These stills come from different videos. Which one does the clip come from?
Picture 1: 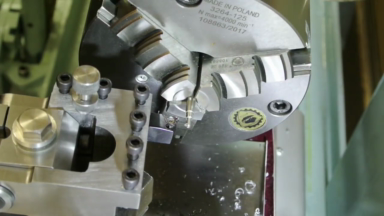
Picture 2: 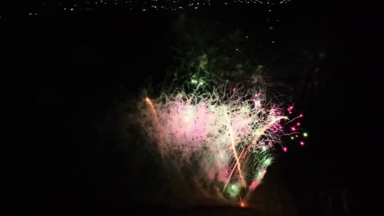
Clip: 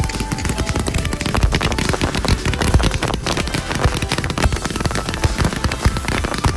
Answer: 2